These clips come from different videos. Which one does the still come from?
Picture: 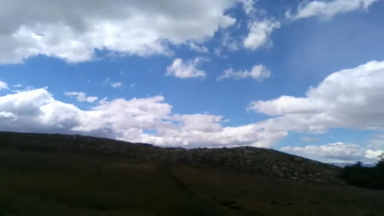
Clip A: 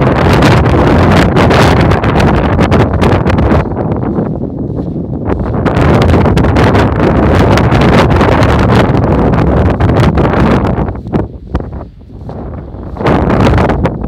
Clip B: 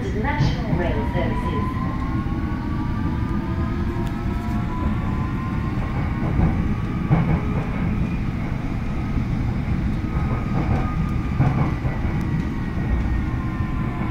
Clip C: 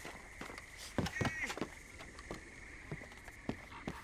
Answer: A